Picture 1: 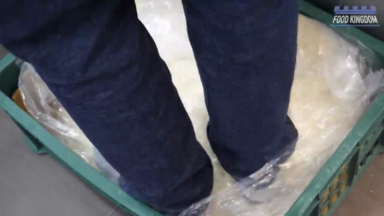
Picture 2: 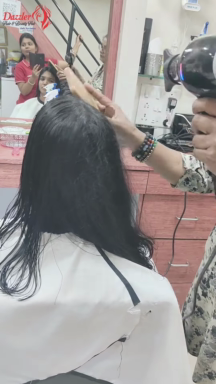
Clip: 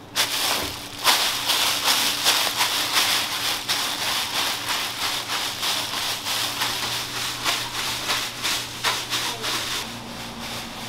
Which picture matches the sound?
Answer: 1